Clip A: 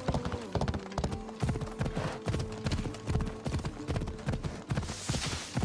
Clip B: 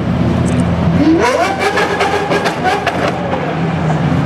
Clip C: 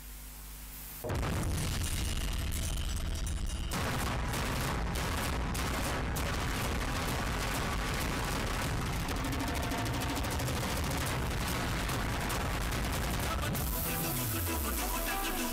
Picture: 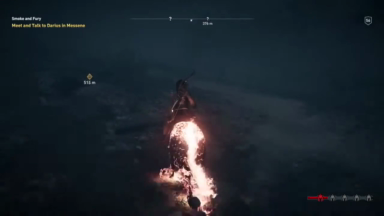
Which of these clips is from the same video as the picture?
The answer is A